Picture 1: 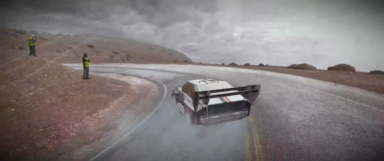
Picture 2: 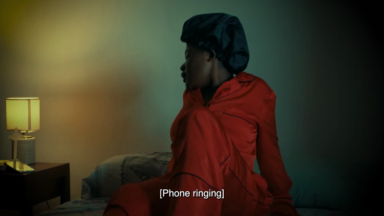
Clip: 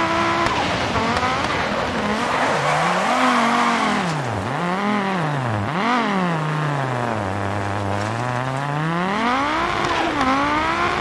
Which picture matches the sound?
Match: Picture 1